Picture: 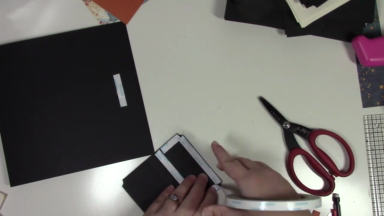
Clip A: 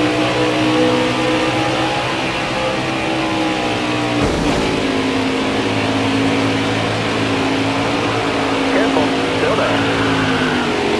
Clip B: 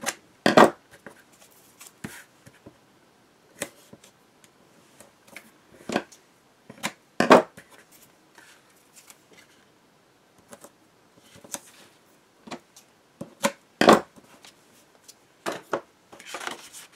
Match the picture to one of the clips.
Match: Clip B